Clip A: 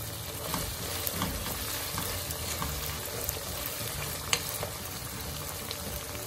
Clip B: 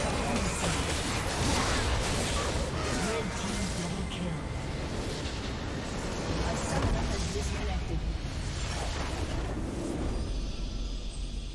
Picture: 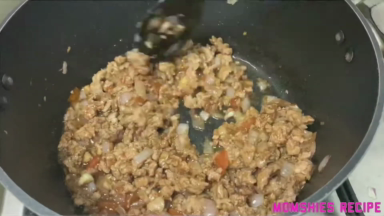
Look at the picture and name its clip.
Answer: A